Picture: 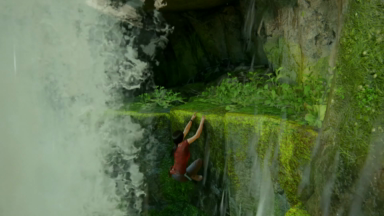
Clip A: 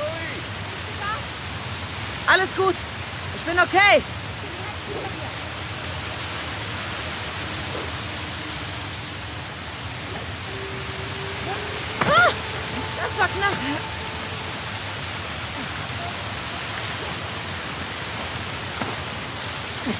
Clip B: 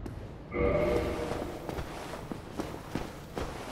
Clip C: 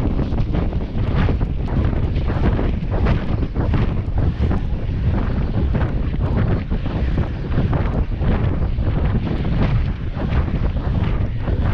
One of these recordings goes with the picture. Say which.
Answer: A